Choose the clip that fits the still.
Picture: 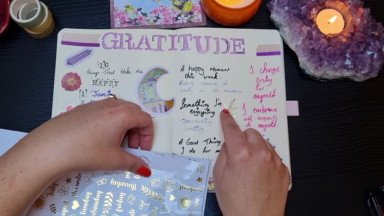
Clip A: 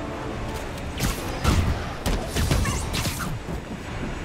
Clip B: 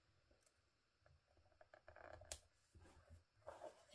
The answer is B